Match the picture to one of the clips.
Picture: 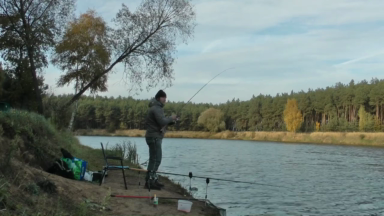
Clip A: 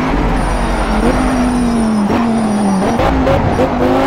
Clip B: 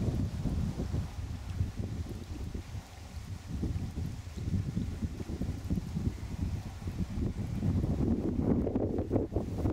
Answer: B